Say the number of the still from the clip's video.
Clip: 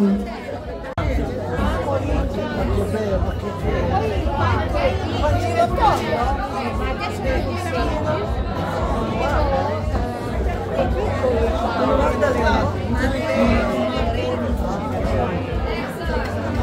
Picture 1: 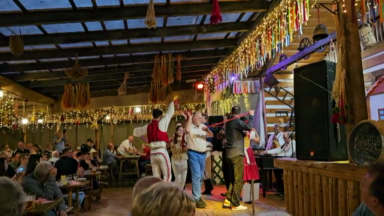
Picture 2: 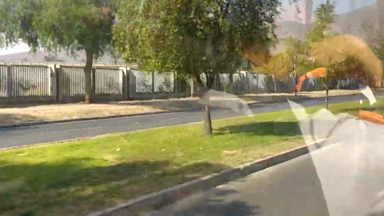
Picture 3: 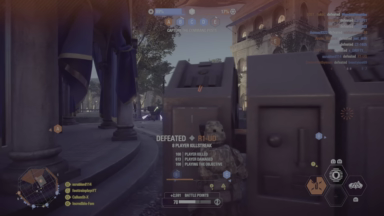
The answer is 1